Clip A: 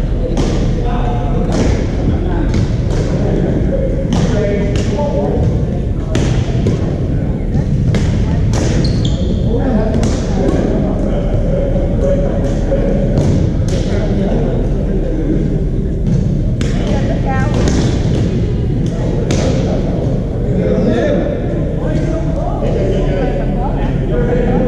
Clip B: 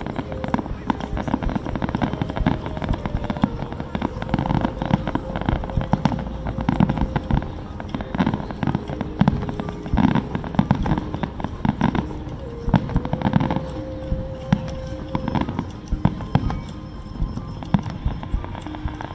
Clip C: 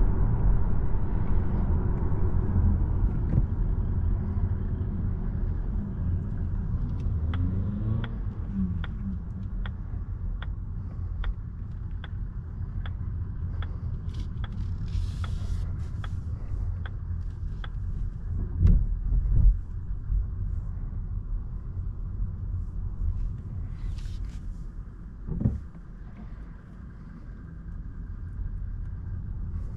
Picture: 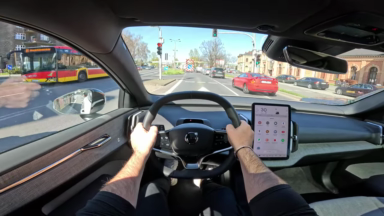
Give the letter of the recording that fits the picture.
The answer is C